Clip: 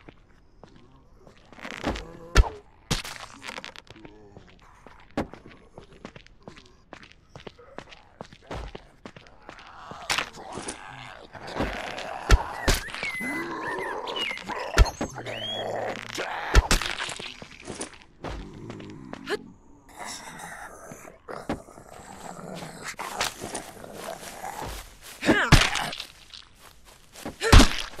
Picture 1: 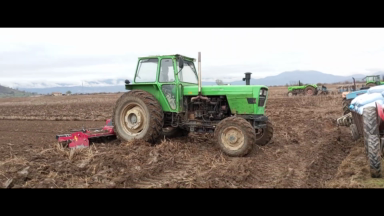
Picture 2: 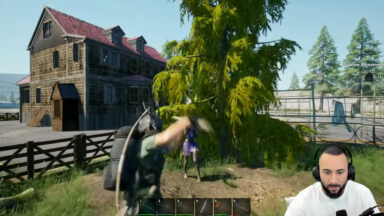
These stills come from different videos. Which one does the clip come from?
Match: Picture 2